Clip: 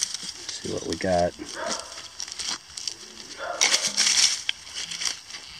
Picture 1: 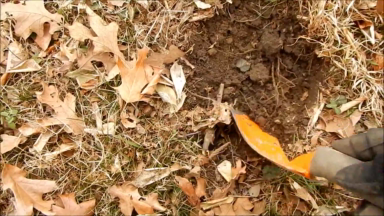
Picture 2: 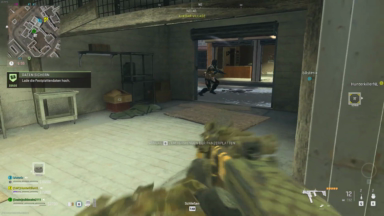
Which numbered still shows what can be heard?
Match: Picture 1